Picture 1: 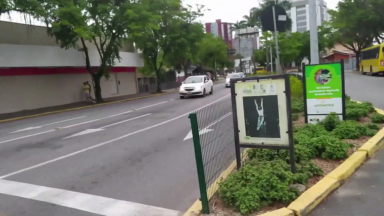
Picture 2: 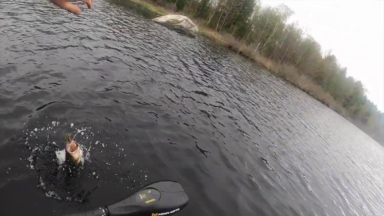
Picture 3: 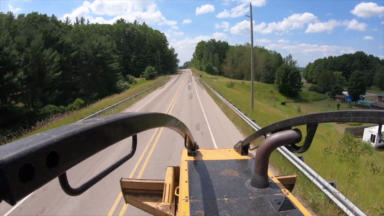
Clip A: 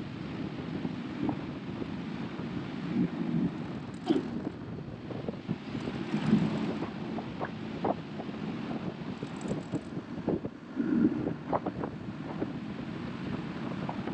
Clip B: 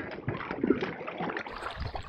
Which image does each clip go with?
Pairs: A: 3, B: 2